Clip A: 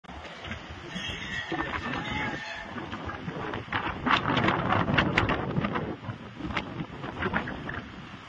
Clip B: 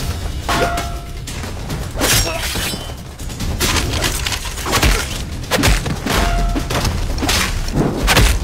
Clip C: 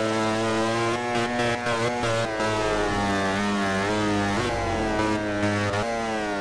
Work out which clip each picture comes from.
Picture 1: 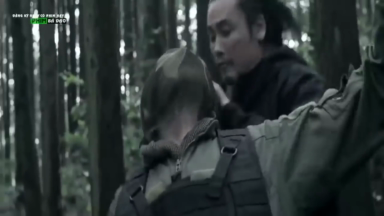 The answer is B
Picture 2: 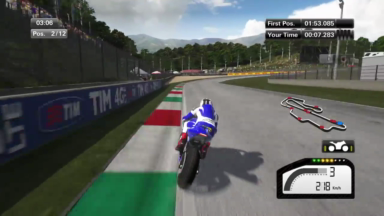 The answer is C